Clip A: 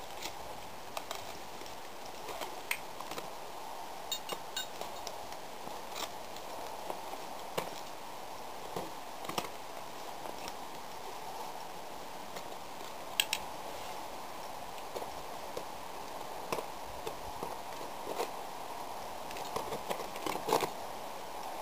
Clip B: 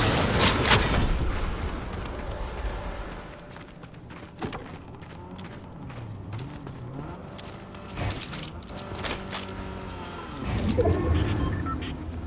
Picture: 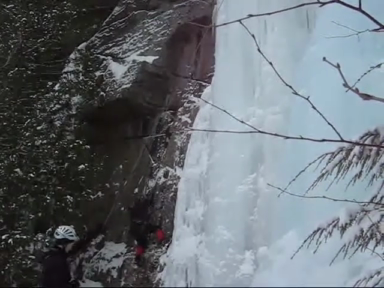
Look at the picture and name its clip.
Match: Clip A